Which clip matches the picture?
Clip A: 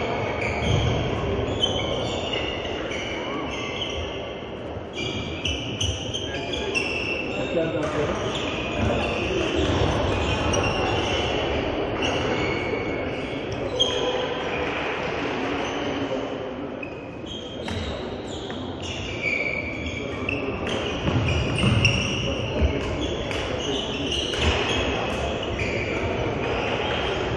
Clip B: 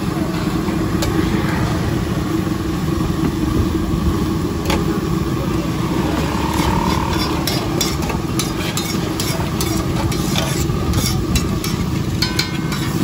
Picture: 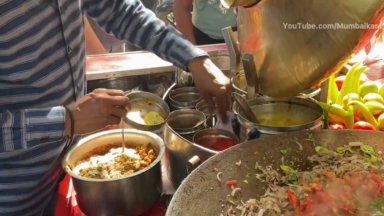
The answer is B